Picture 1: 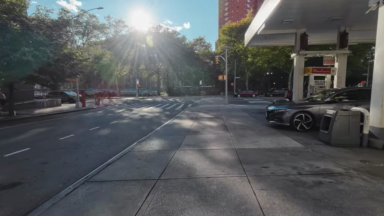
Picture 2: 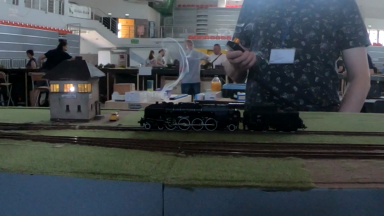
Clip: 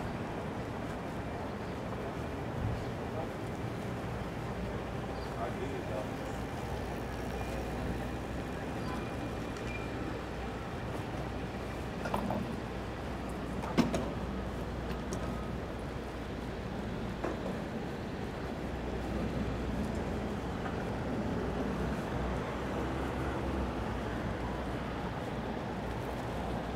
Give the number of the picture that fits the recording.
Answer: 1